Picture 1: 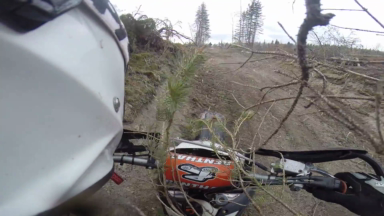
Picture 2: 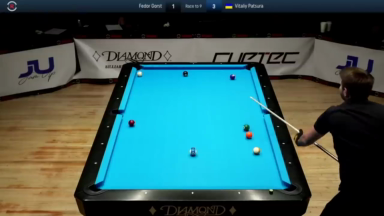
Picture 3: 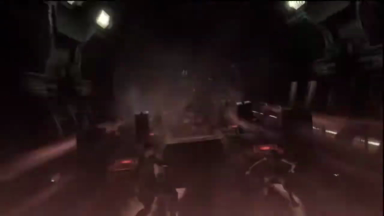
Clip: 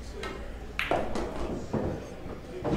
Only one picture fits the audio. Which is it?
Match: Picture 2